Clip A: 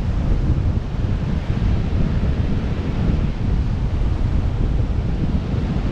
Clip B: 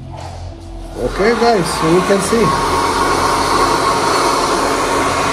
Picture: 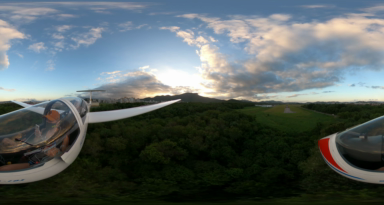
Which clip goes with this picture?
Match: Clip A